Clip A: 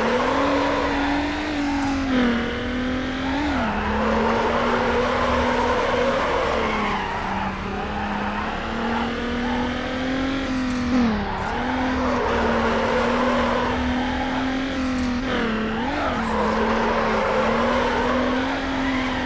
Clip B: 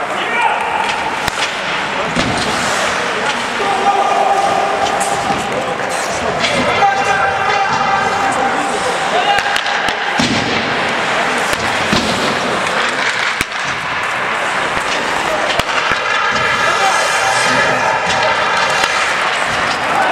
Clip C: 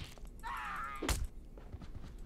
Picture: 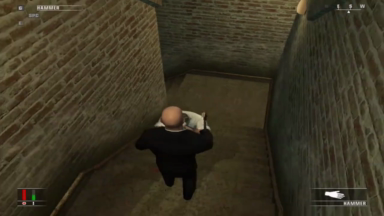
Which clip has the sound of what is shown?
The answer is C